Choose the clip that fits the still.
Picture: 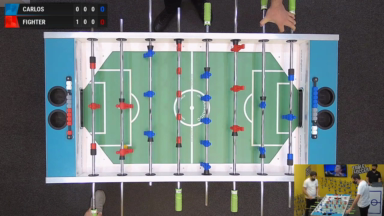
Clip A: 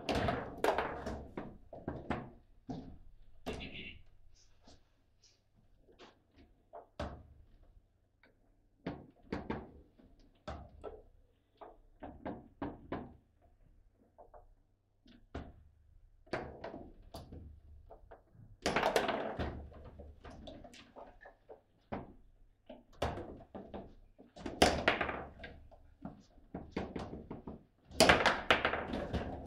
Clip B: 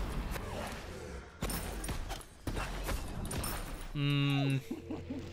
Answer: A